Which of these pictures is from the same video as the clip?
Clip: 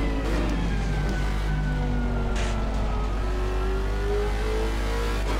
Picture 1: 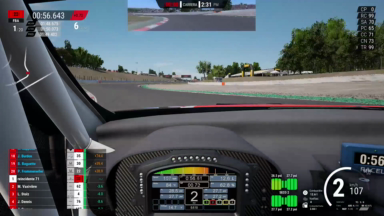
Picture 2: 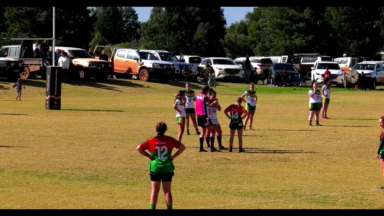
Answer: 1